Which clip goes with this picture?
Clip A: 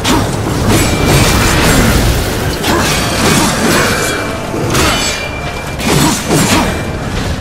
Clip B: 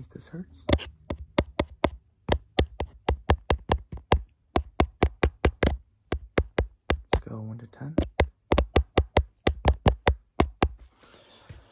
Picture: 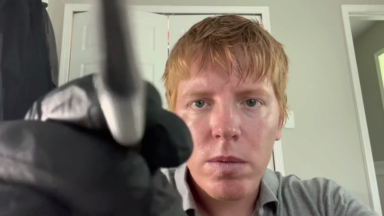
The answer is B